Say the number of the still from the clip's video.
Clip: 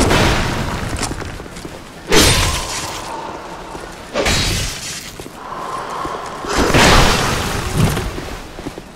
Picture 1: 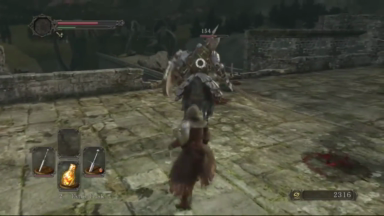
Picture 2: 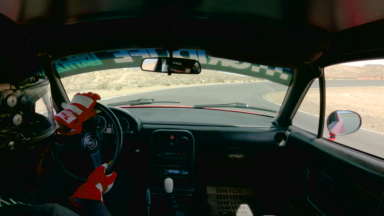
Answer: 1